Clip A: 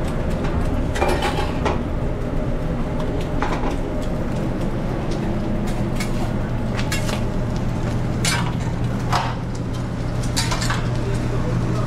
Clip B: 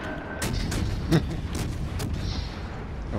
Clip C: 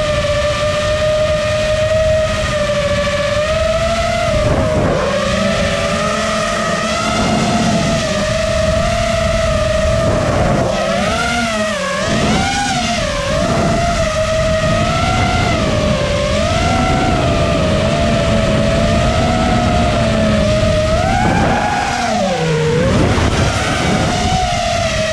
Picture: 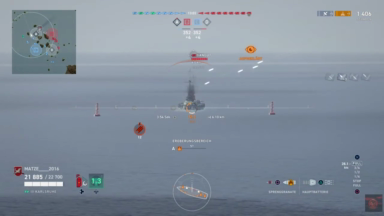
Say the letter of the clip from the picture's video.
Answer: B